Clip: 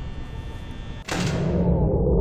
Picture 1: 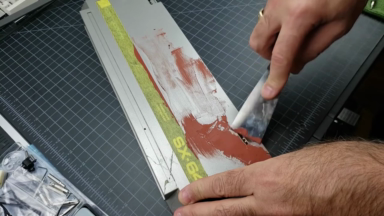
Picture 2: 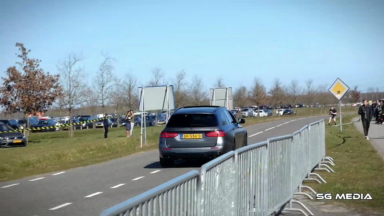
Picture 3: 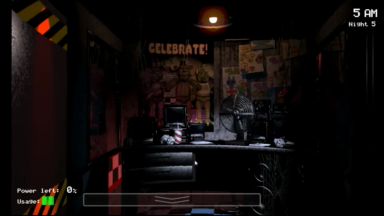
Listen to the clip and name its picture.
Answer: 3